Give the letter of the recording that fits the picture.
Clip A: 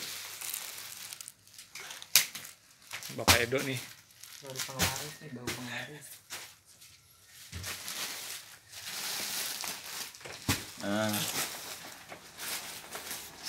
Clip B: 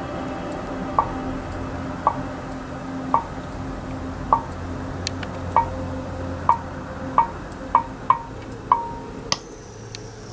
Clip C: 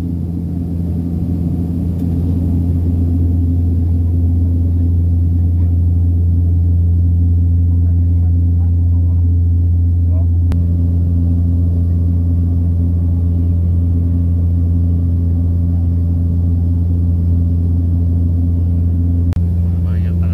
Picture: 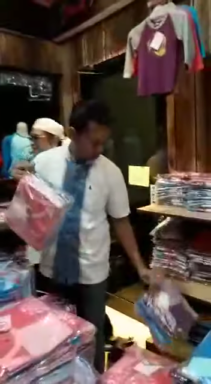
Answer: A